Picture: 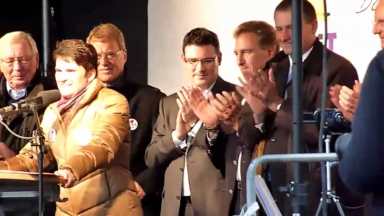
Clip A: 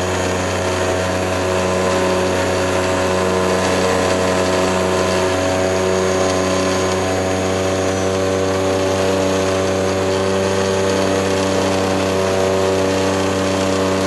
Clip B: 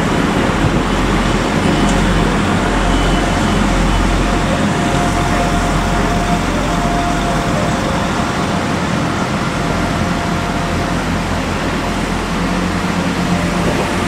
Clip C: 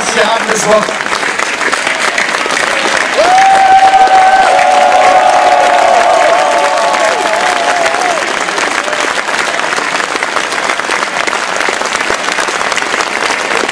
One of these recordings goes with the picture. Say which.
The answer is C